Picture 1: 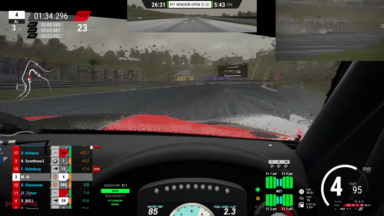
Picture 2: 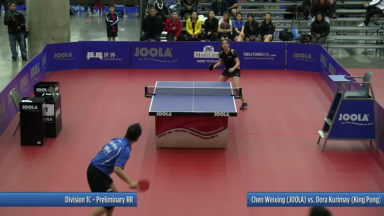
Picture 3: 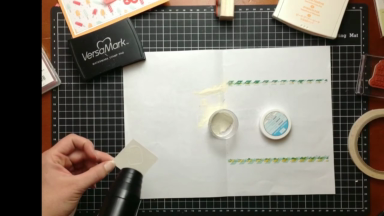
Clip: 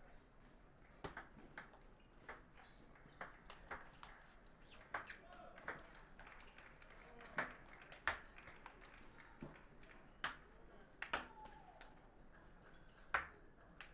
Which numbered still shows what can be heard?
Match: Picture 2